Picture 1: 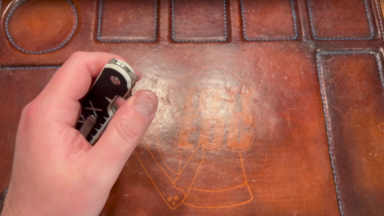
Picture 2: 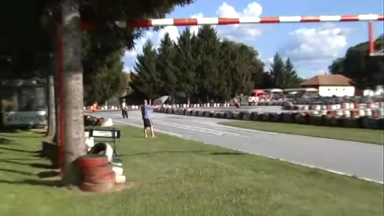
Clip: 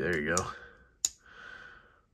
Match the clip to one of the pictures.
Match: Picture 1